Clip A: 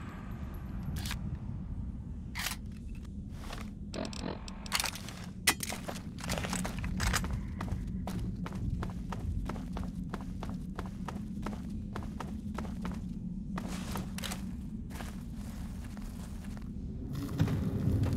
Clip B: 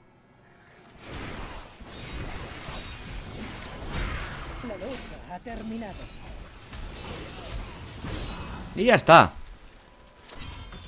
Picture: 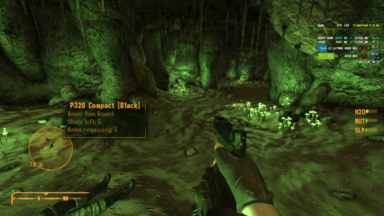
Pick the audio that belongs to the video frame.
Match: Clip A